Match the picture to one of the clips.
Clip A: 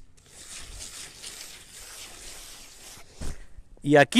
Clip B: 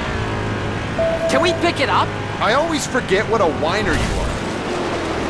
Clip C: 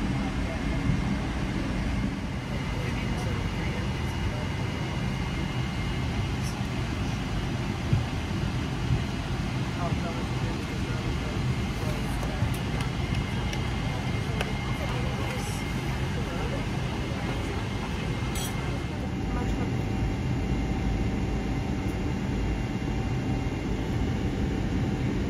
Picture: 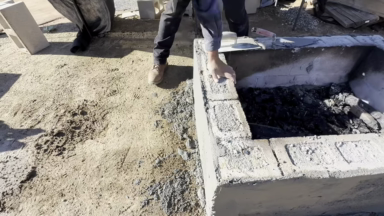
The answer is A